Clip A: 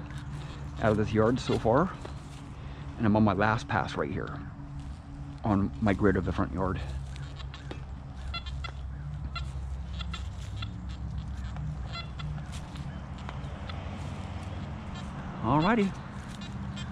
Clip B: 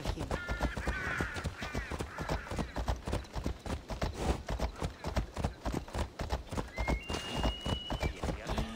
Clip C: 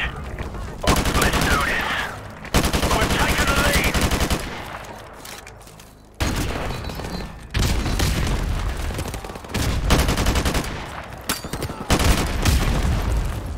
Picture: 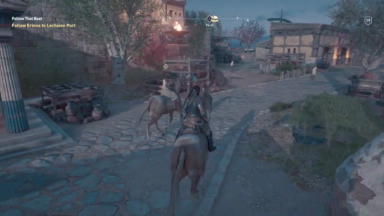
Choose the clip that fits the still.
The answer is B